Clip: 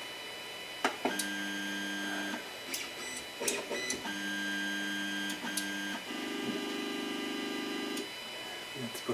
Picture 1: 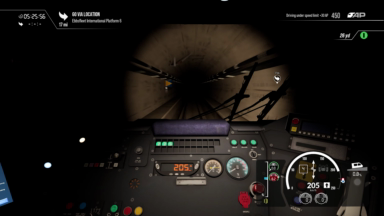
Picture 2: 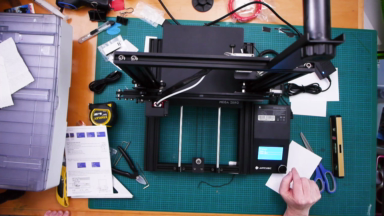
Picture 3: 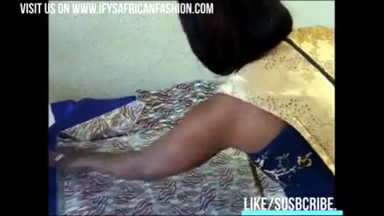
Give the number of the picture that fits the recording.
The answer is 2